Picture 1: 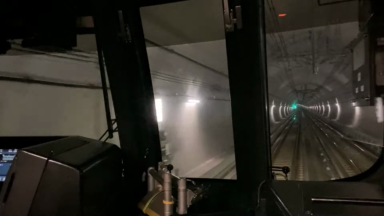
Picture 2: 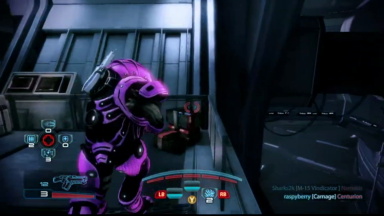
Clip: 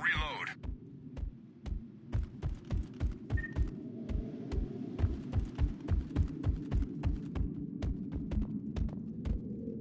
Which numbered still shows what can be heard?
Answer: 2